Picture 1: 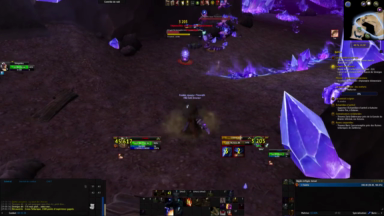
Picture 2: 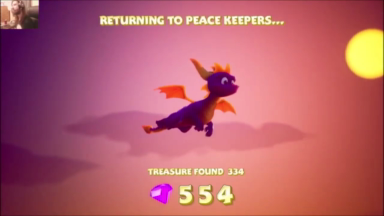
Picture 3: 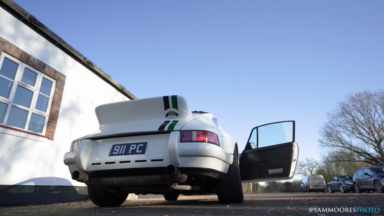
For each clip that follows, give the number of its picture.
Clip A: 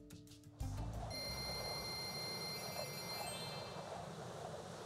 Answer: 2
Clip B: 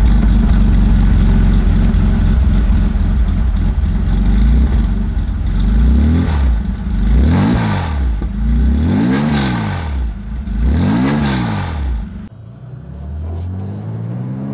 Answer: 3